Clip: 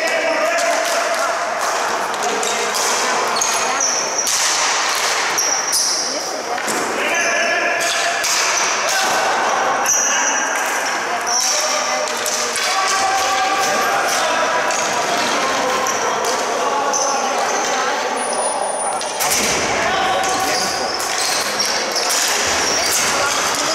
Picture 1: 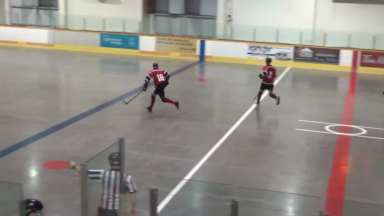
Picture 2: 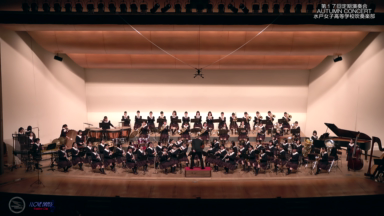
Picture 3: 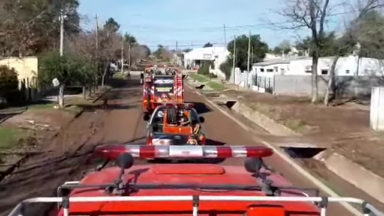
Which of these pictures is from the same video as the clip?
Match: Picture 1